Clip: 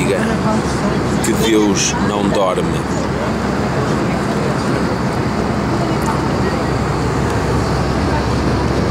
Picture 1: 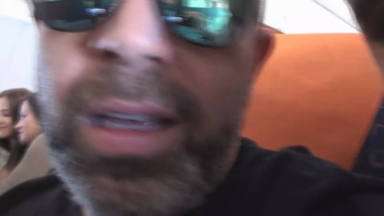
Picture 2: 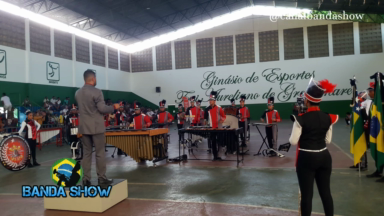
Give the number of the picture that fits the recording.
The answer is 1